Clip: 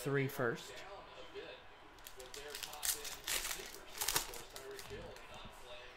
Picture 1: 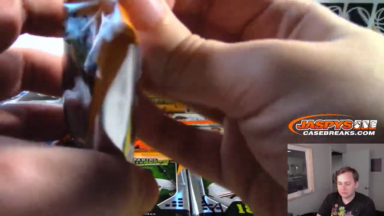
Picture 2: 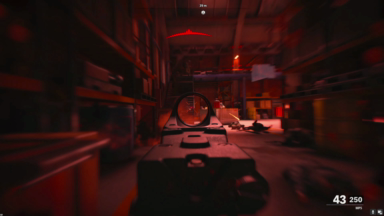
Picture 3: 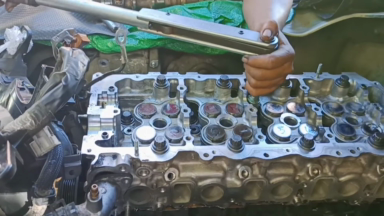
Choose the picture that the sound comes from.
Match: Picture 1